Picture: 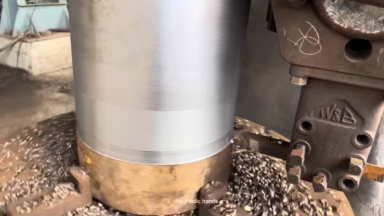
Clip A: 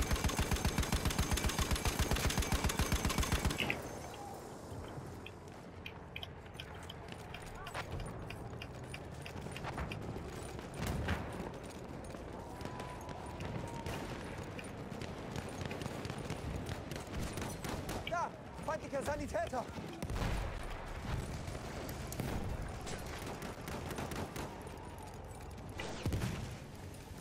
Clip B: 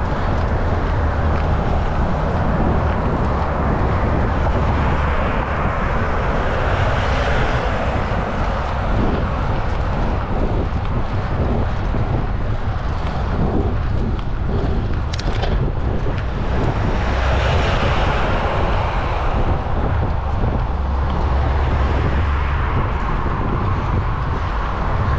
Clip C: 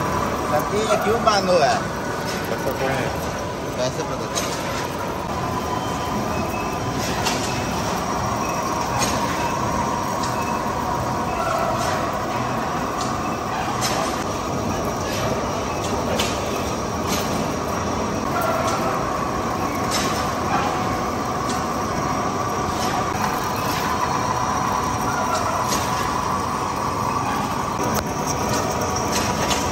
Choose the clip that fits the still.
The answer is C